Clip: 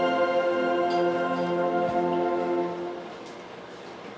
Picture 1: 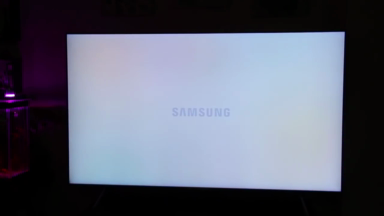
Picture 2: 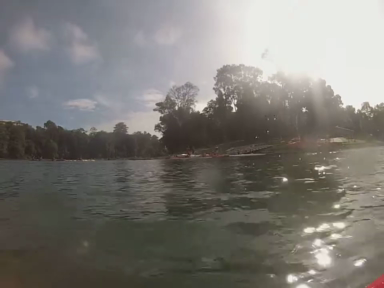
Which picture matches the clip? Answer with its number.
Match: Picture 1